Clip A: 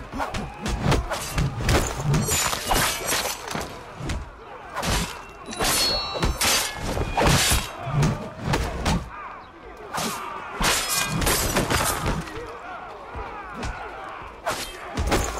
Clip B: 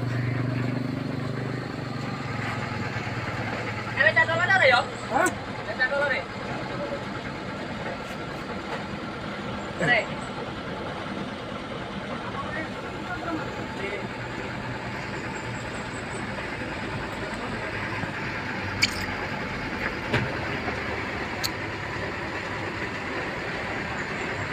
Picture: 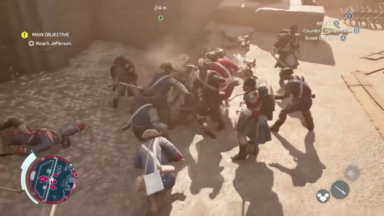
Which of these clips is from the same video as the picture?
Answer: A